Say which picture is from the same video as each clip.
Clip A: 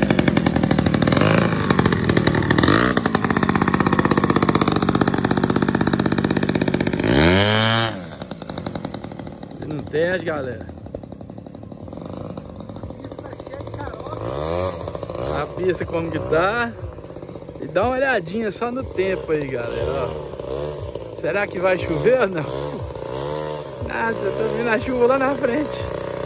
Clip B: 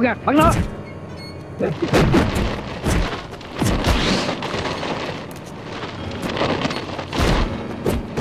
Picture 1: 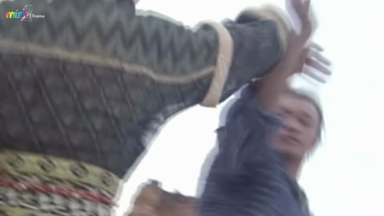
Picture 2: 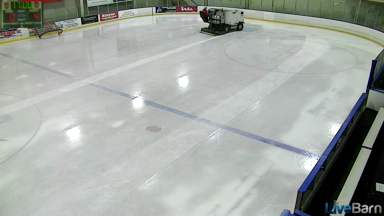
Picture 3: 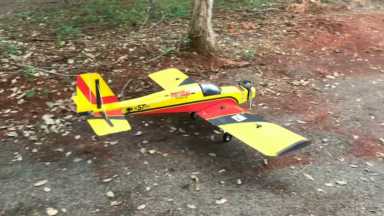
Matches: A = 3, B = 1